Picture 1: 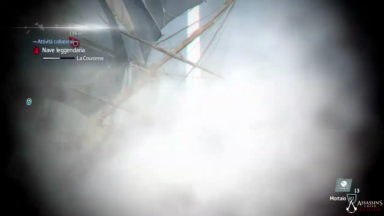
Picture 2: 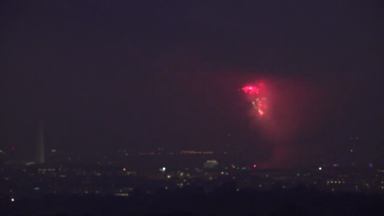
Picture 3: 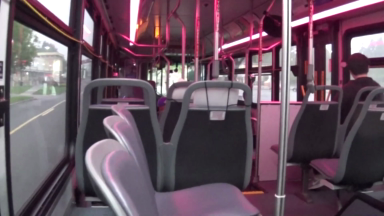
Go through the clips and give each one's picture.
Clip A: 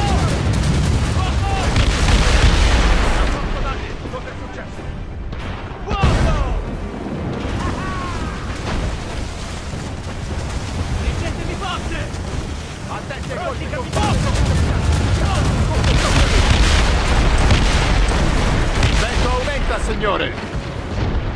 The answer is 1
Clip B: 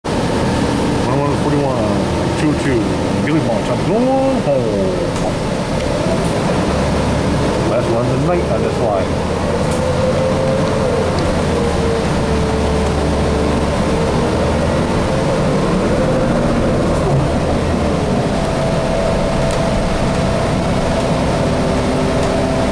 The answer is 3